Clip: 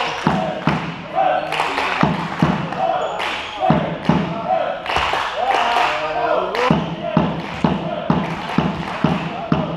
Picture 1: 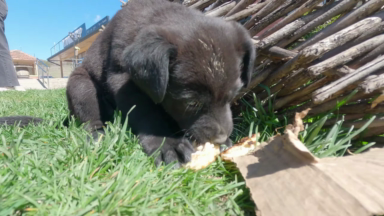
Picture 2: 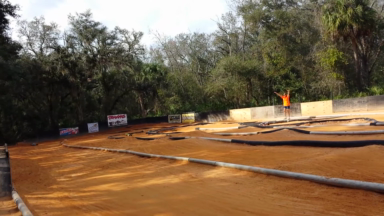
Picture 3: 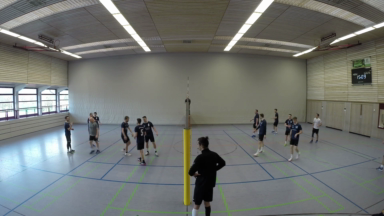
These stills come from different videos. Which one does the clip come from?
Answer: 3